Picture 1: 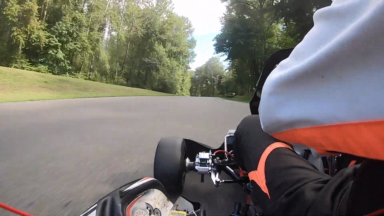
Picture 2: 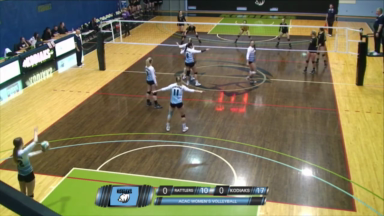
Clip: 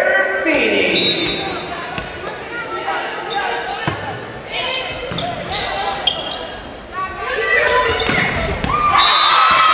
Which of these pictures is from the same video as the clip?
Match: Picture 2